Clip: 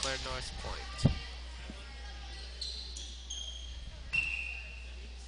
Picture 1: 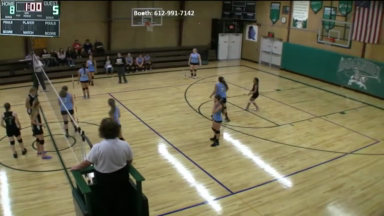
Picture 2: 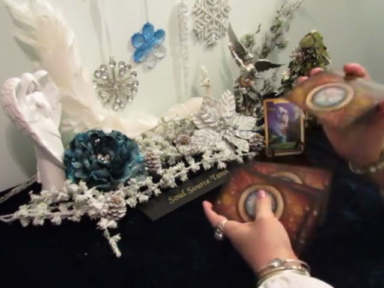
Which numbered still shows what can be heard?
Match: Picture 1